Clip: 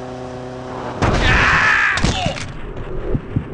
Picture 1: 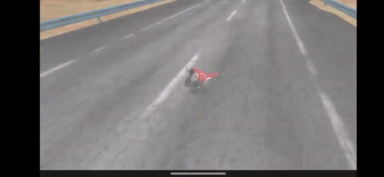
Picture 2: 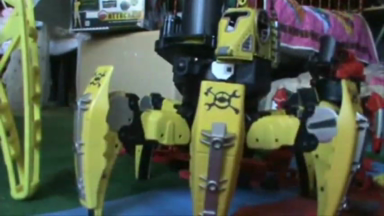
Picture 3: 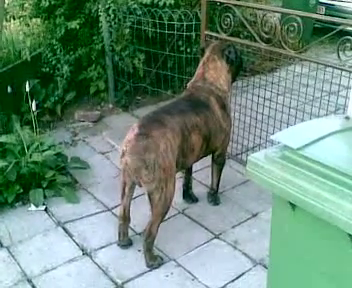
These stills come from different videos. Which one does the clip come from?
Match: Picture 1